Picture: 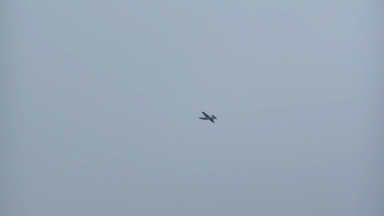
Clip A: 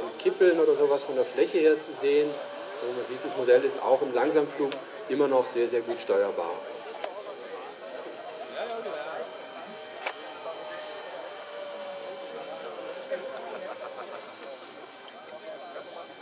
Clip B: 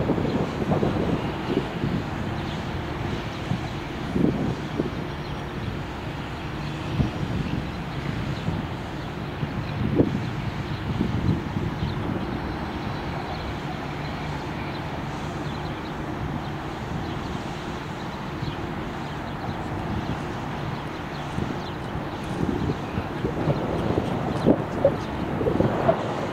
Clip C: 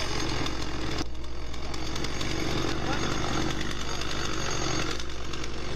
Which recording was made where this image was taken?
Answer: A